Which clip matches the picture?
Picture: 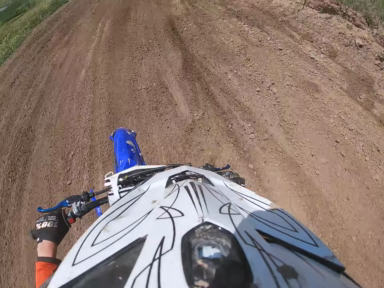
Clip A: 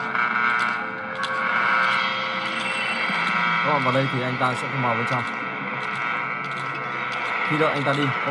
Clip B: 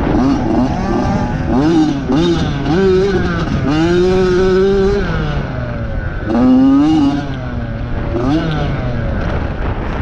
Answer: B